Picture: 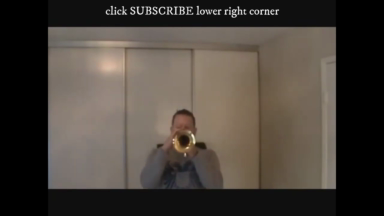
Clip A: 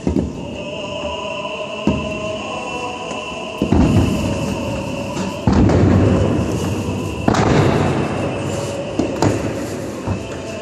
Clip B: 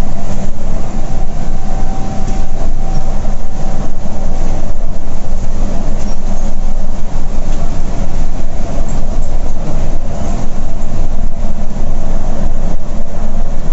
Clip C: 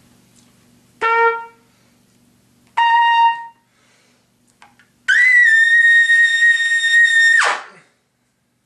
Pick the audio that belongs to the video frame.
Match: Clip C